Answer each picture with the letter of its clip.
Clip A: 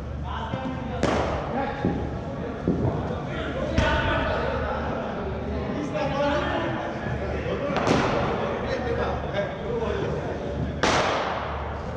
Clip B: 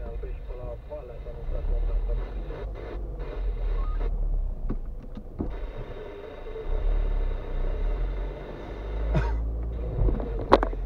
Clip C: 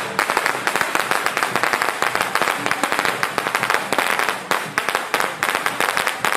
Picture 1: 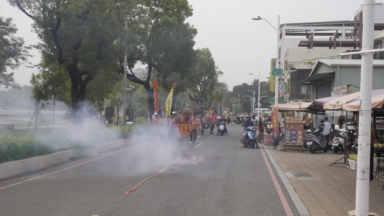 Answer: C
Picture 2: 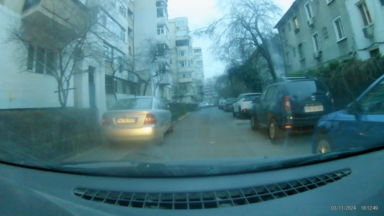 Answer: B